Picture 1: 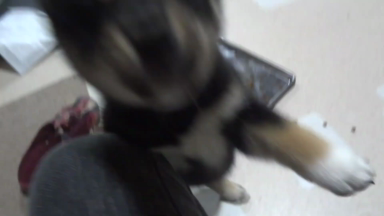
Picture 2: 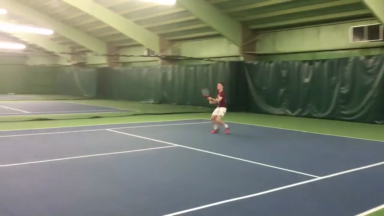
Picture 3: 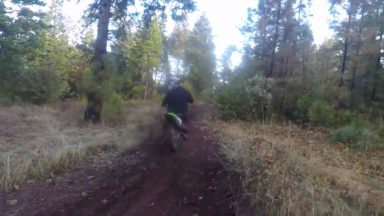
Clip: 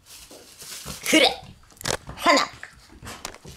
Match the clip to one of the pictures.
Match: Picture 1